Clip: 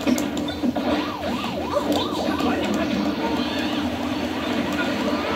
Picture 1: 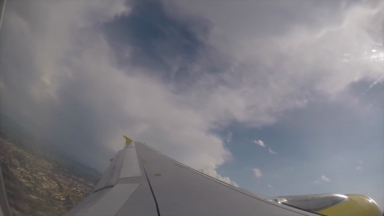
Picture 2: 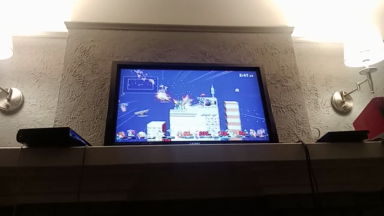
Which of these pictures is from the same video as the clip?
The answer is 2